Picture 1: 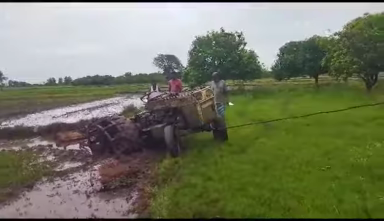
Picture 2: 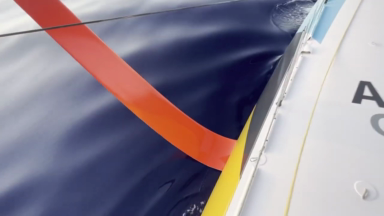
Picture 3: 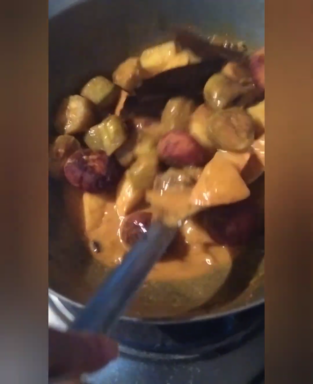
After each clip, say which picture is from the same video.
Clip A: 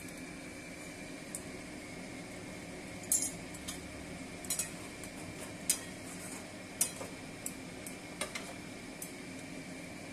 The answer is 3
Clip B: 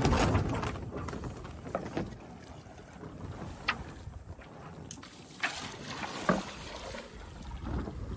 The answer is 2